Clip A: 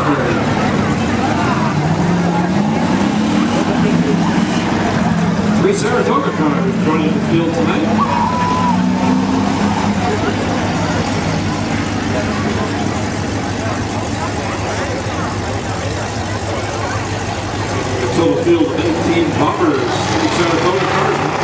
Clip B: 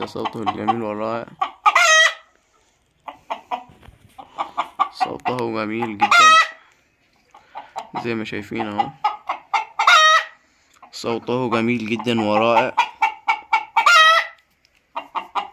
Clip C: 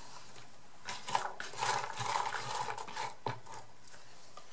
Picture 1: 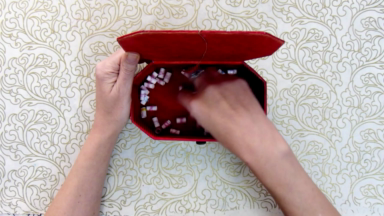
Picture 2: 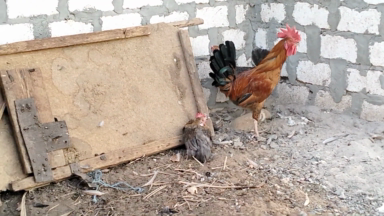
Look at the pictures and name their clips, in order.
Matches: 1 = C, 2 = B